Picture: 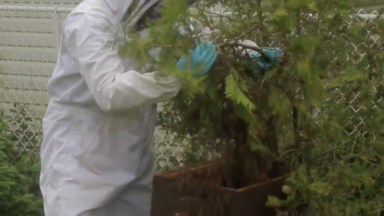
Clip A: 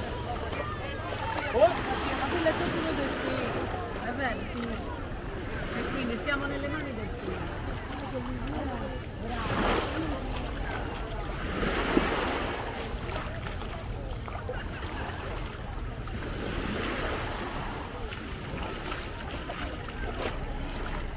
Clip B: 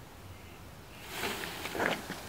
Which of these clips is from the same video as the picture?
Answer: B